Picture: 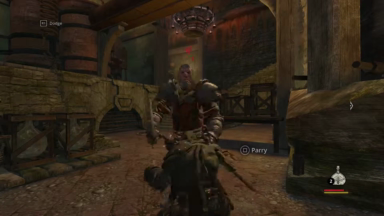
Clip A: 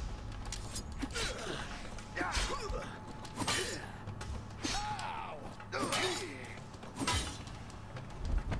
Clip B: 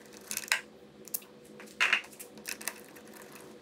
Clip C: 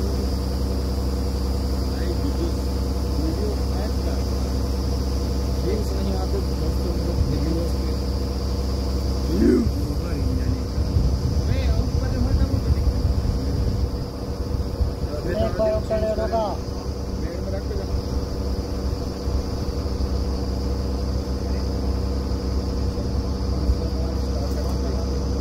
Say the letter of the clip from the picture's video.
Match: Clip A